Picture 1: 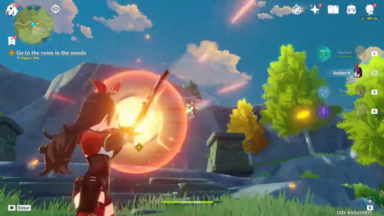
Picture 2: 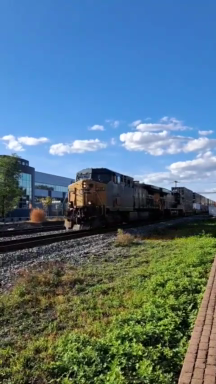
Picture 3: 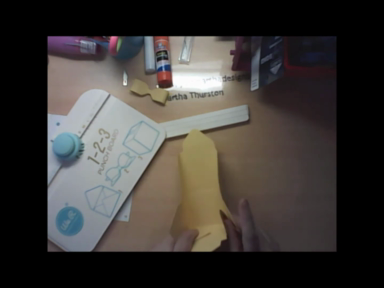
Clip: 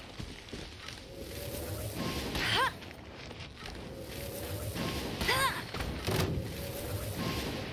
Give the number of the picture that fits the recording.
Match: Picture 1